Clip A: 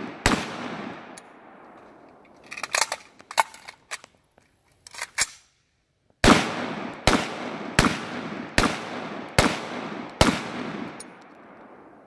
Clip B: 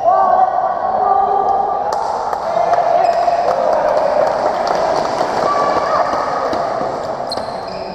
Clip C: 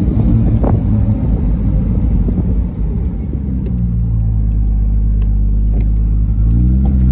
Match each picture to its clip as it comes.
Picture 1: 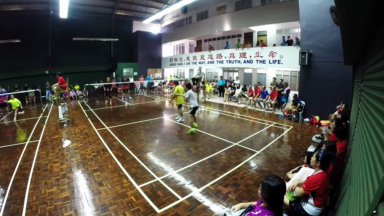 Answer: B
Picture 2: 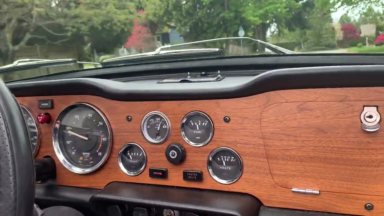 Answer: C